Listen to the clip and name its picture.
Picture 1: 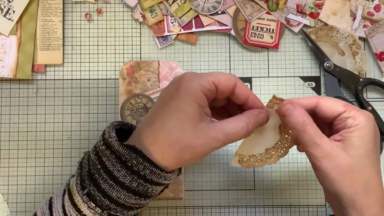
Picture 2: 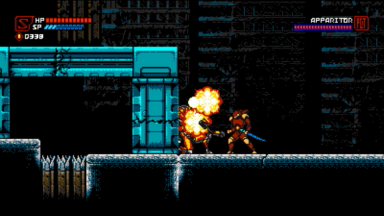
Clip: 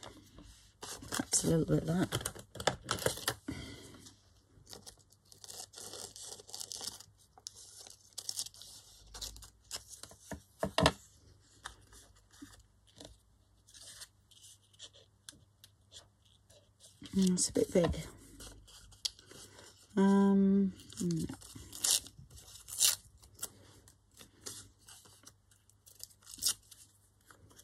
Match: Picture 1